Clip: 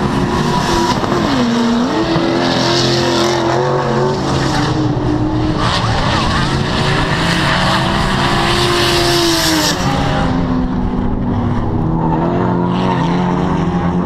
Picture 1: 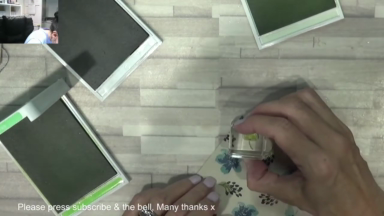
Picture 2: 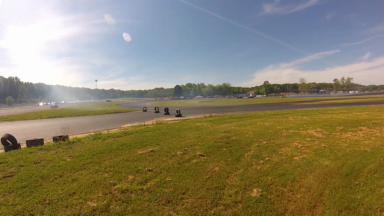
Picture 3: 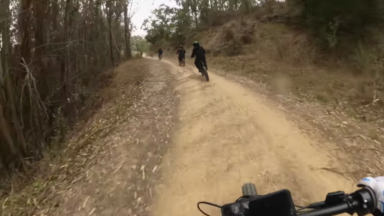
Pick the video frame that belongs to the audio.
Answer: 2